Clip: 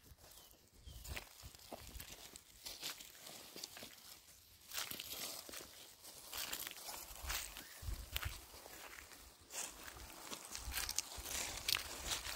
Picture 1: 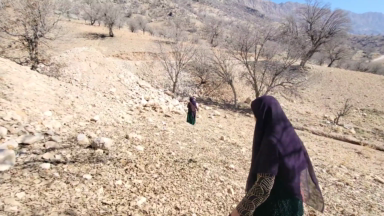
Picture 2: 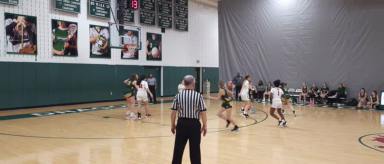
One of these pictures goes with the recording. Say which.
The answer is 1